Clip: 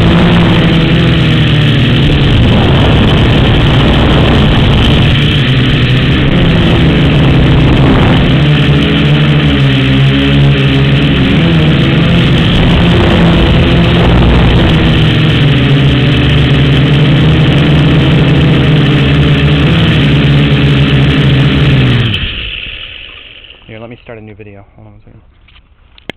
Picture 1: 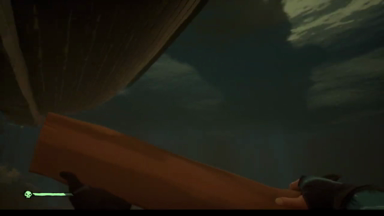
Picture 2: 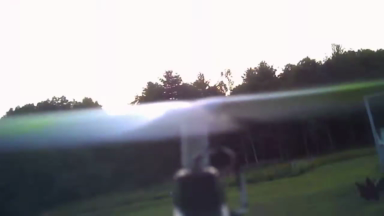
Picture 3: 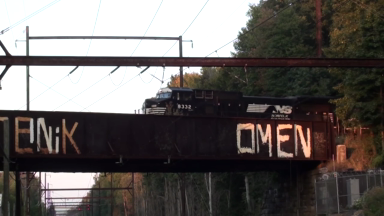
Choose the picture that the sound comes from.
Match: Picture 2